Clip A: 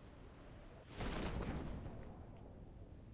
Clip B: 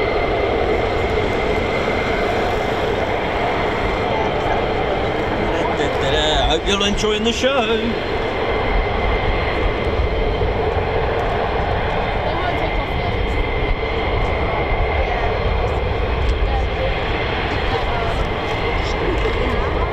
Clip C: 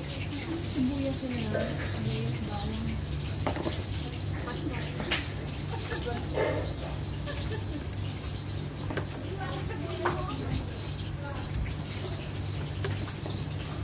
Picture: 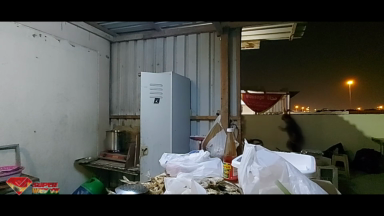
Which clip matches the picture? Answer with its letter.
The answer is C